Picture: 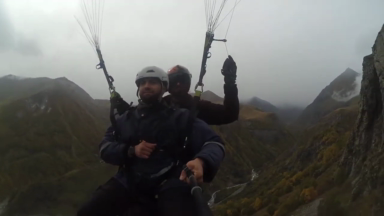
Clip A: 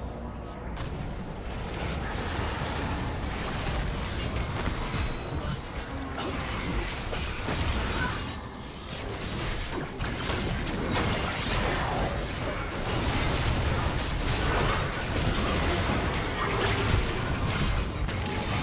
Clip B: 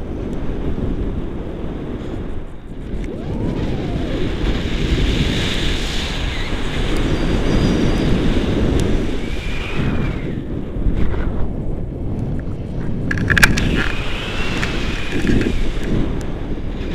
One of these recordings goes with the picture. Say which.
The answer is B